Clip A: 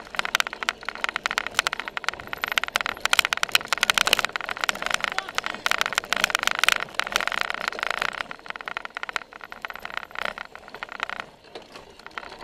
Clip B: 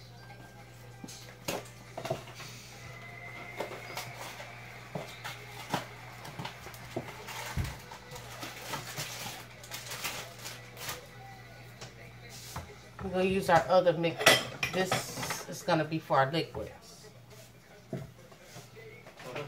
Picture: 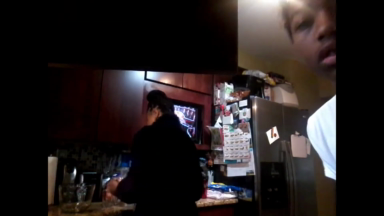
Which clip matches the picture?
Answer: B